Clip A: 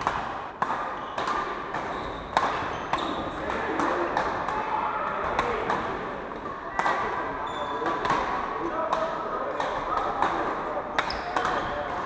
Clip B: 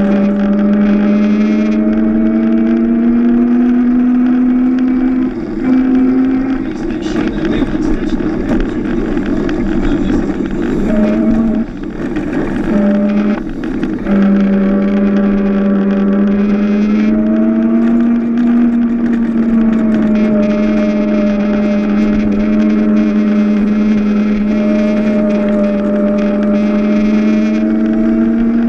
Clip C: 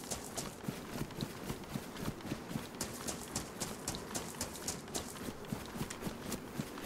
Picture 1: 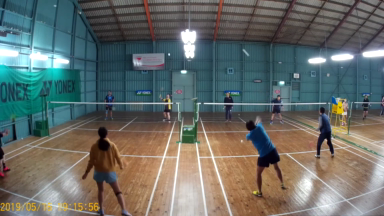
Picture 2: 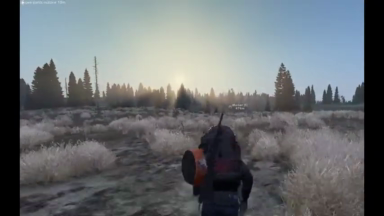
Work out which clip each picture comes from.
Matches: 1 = A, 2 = C